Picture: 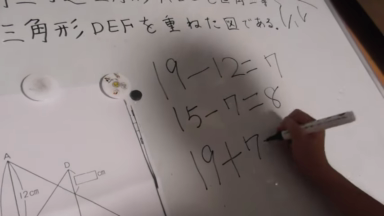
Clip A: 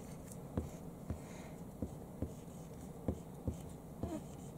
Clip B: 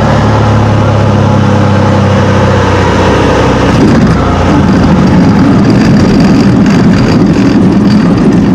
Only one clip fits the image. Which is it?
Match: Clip A